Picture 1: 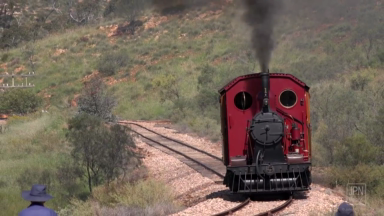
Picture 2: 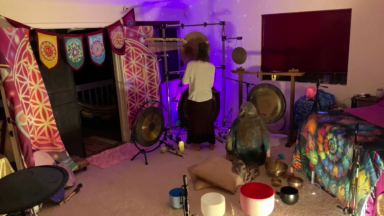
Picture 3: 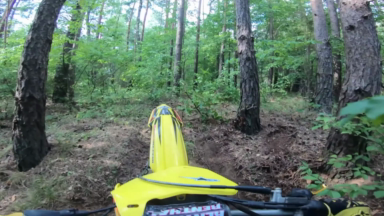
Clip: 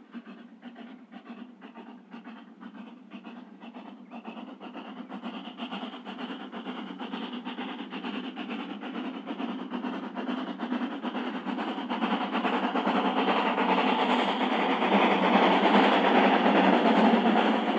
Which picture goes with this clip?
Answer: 1